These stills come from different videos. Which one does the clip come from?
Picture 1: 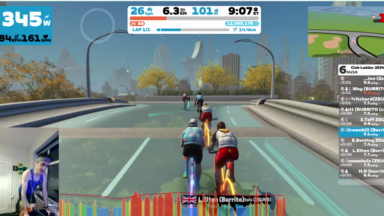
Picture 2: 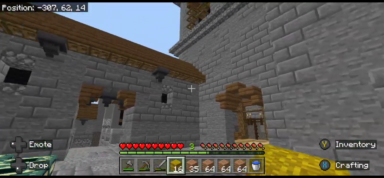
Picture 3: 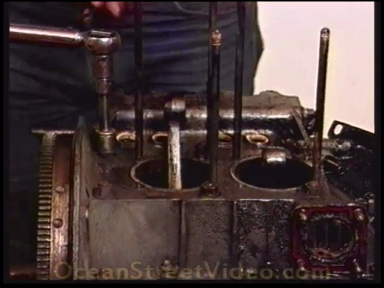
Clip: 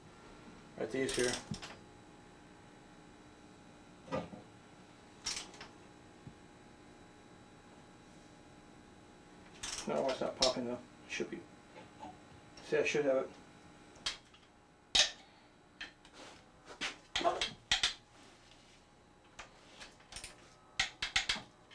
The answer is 3